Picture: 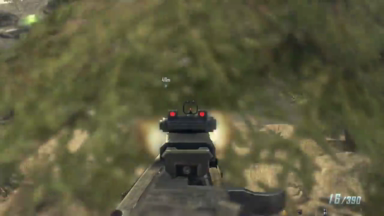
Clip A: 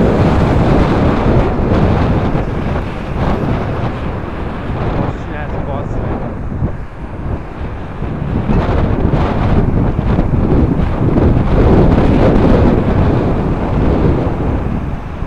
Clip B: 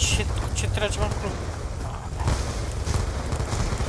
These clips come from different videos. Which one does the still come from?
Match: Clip B